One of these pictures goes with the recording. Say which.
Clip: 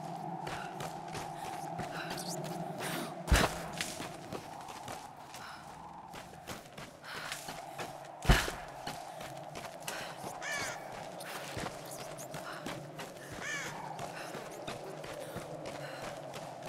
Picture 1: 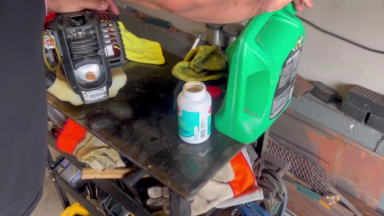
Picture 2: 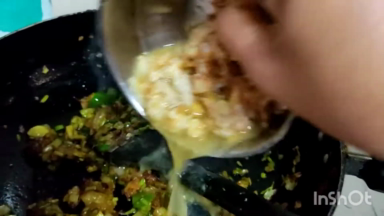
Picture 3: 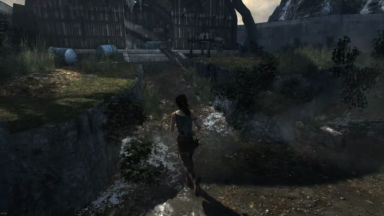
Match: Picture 3